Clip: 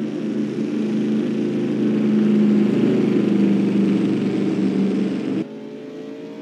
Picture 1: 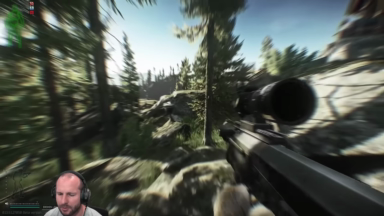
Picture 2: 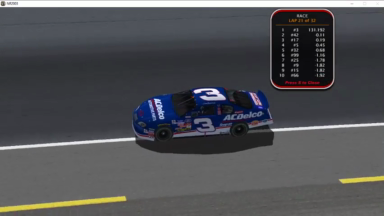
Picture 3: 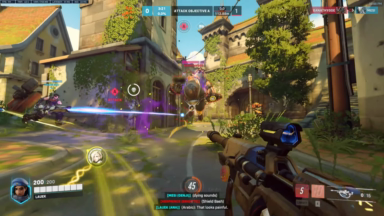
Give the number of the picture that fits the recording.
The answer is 2